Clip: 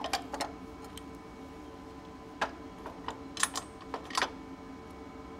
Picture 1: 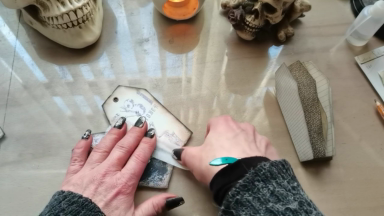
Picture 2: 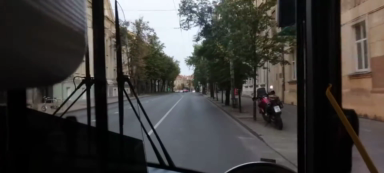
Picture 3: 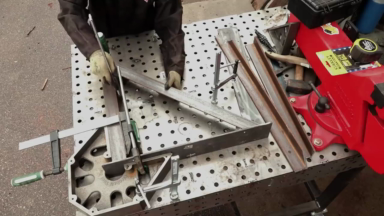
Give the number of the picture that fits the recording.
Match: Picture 3